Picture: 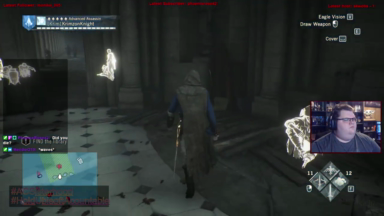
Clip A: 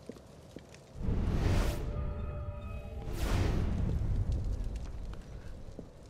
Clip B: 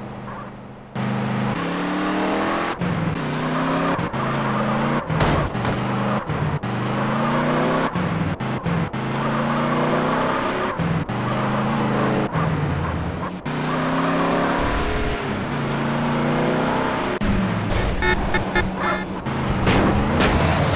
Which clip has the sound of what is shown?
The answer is A